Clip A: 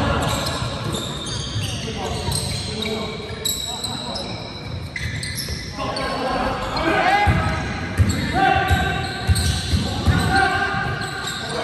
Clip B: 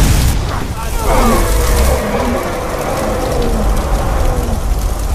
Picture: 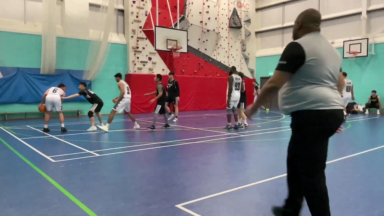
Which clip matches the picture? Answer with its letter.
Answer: A